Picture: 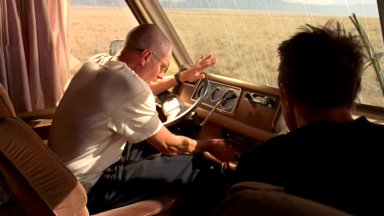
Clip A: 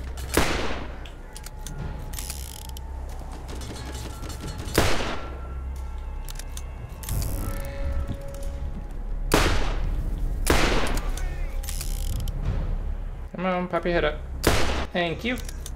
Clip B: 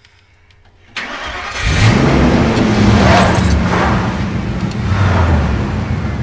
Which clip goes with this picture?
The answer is B